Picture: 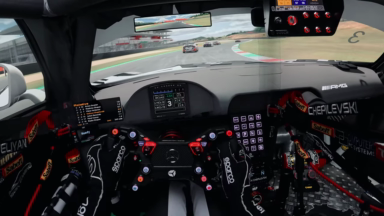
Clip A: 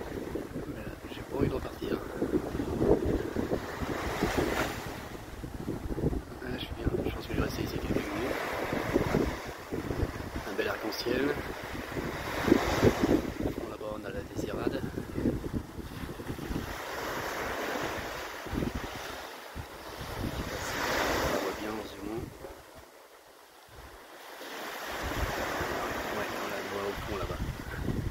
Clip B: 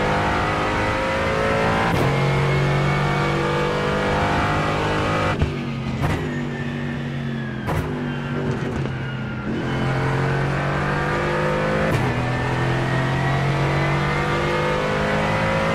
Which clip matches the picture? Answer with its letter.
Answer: B